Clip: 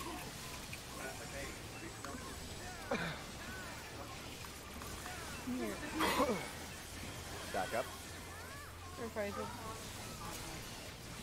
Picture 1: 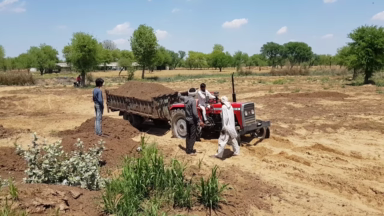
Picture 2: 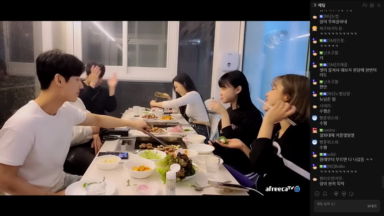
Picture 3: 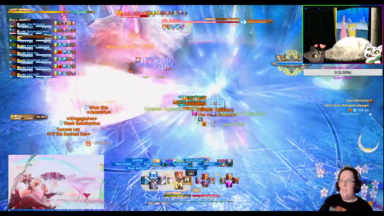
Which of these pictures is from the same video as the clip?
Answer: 3